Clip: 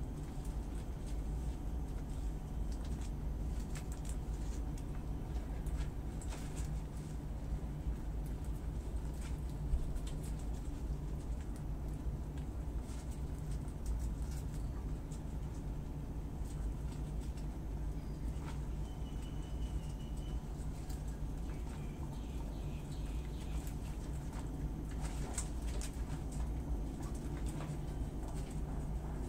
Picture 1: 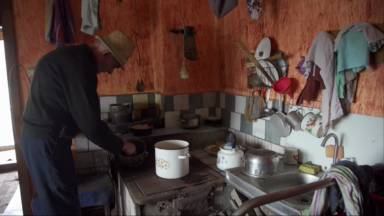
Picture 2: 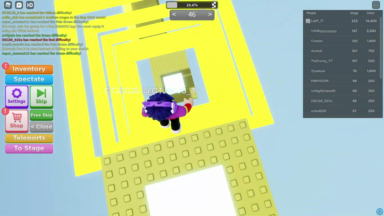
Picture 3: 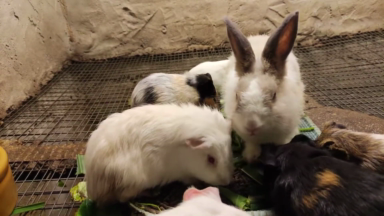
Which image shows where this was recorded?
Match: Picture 3